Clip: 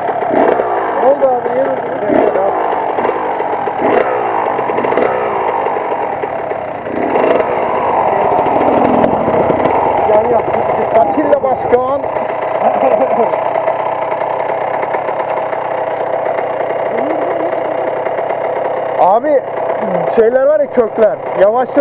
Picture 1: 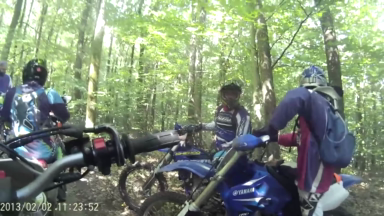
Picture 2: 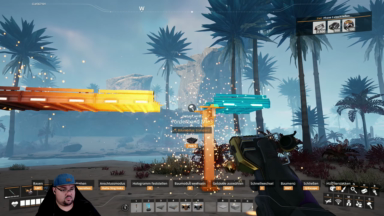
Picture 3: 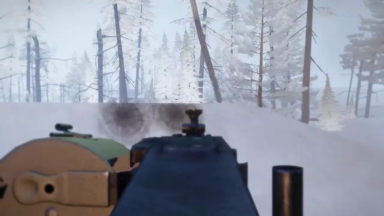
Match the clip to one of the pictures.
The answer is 1